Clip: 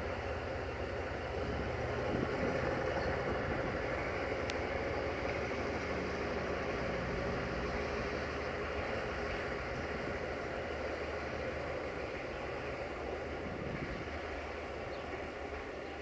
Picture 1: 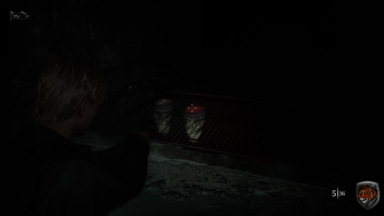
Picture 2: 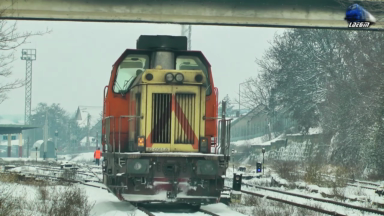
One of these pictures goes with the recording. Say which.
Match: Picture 2